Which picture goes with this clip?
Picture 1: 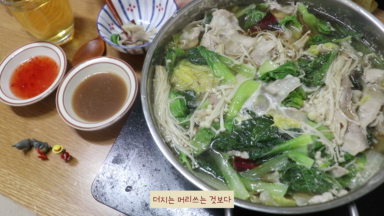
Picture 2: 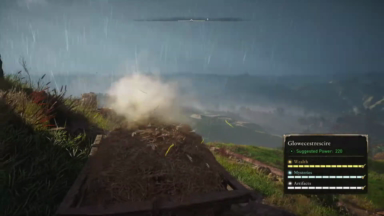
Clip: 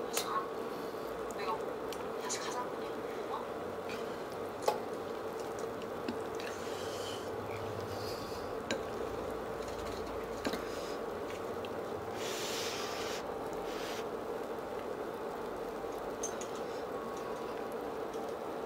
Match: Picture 1